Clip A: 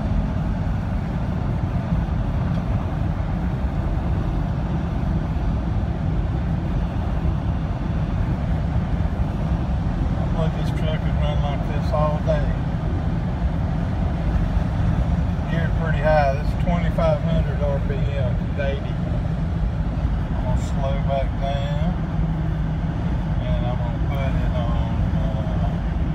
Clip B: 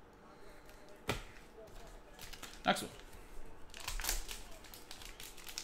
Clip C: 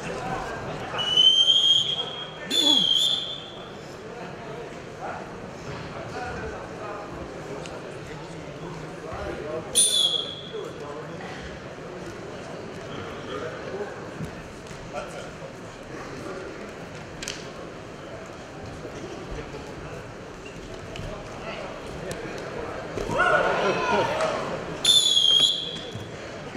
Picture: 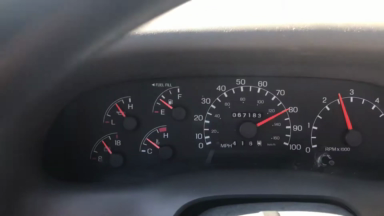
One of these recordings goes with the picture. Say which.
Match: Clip A